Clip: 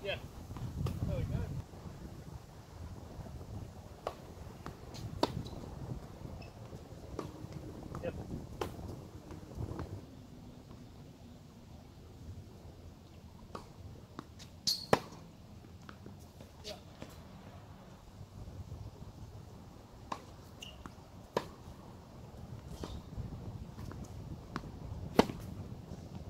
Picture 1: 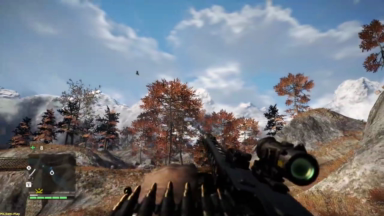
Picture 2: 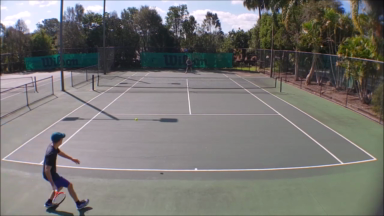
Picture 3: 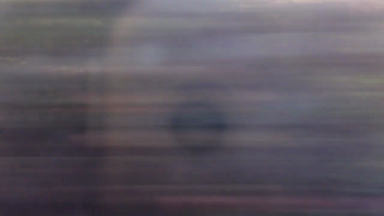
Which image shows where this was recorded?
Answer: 2